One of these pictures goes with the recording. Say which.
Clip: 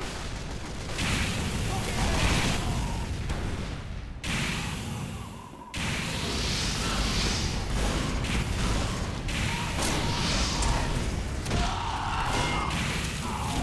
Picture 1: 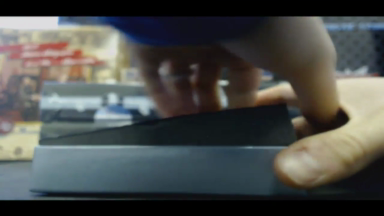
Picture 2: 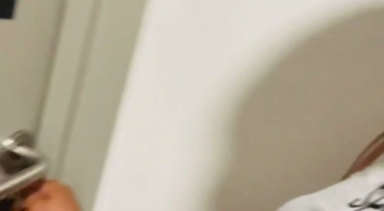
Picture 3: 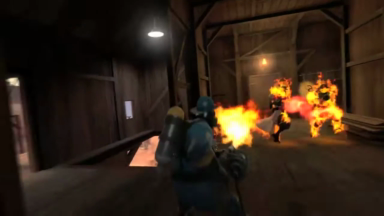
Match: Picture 3